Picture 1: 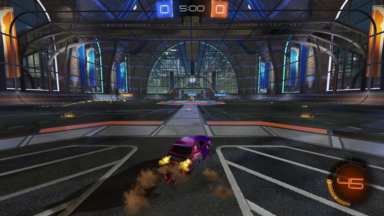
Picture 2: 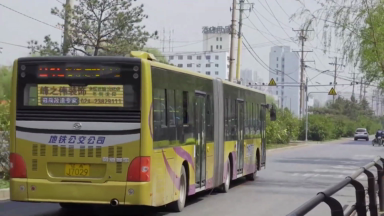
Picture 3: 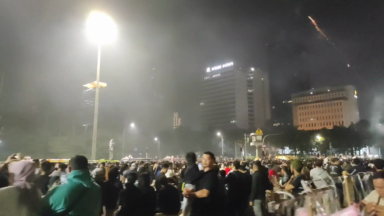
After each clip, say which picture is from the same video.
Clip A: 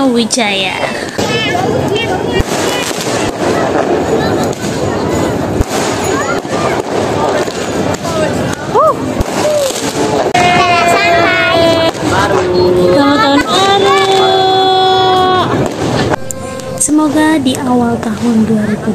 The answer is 3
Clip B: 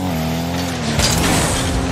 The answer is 1